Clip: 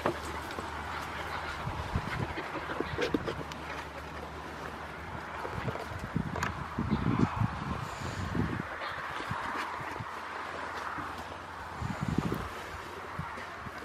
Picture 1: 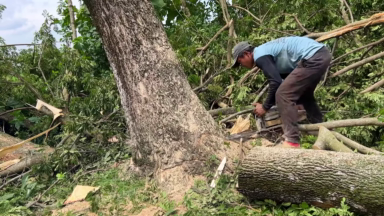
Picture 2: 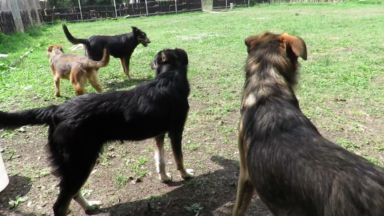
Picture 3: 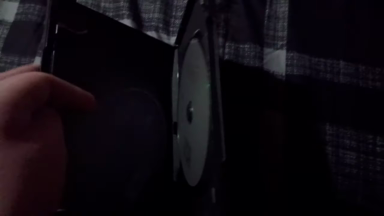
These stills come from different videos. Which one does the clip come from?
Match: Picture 2